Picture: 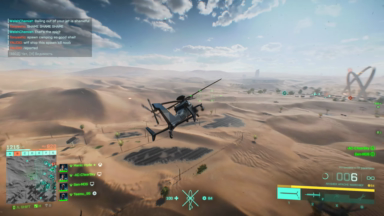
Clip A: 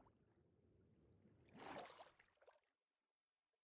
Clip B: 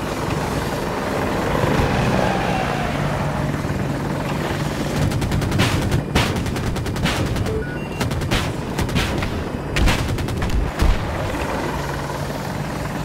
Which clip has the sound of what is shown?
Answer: B